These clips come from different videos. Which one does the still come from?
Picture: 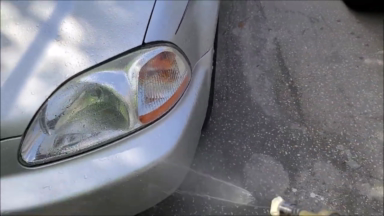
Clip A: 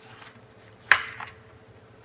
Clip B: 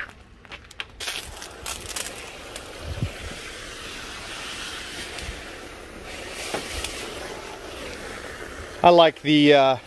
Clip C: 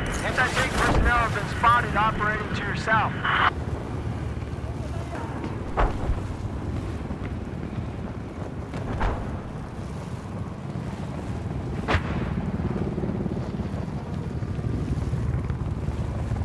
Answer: B